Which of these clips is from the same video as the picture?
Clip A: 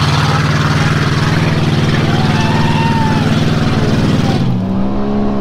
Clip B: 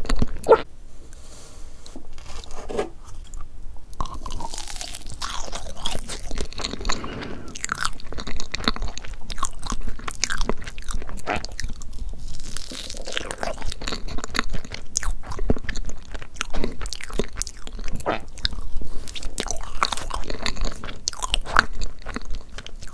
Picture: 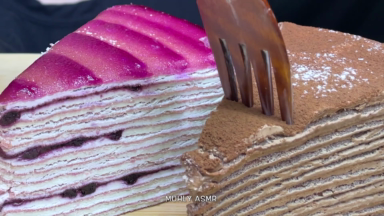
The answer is B